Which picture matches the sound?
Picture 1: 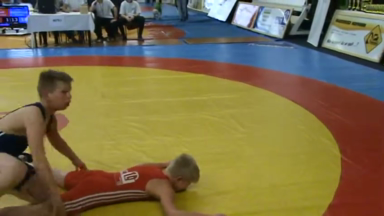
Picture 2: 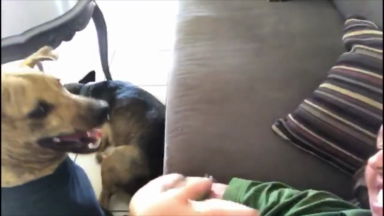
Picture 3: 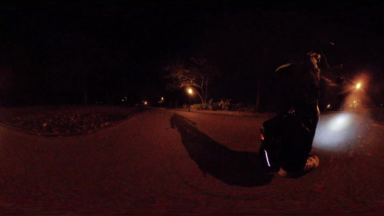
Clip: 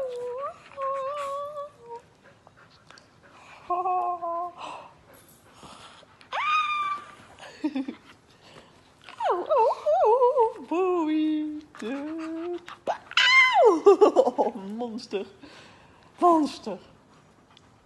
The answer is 2